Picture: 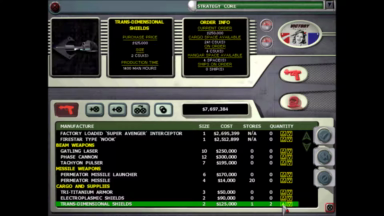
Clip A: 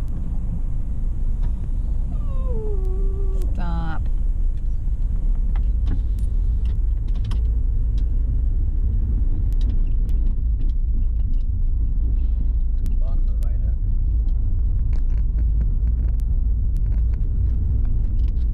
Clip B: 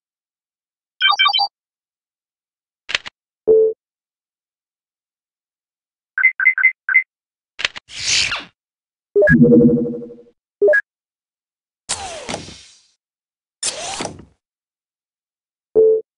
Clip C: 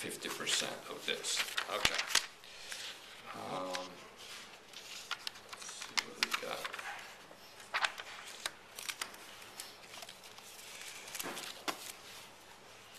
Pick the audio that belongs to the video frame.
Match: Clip B